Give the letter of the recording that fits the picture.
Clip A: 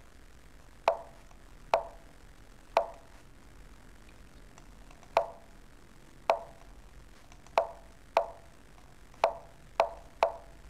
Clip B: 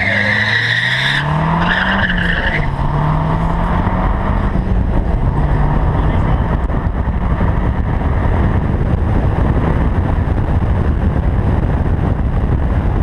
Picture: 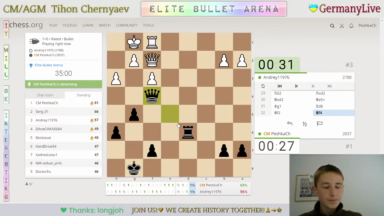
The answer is A